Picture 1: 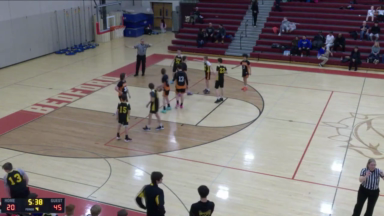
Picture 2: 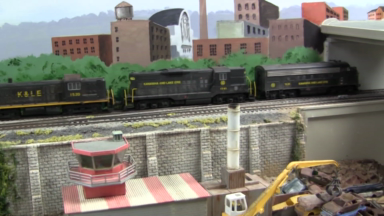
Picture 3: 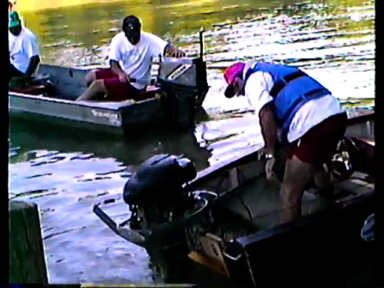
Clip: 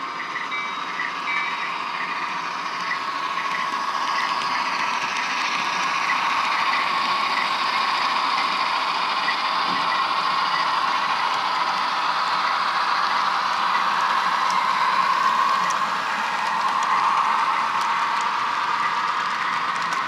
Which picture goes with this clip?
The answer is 2